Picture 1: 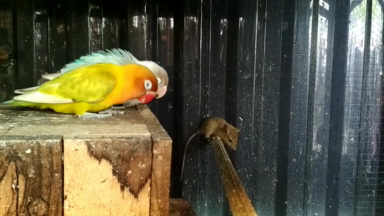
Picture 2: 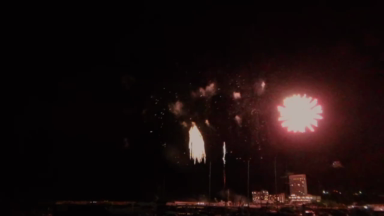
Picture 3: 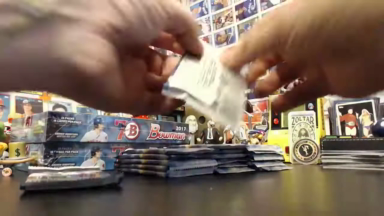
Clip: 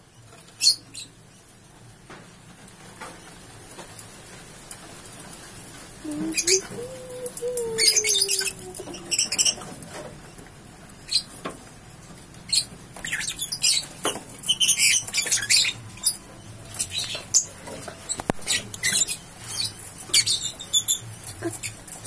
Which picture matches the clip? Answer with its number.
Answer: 1